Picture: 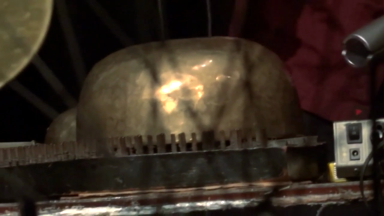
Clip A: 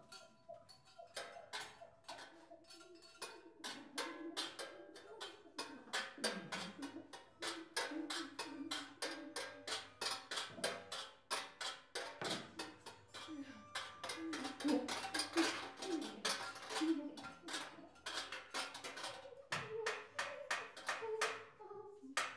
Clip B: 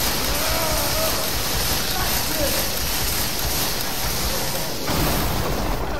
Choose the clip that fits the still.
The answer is A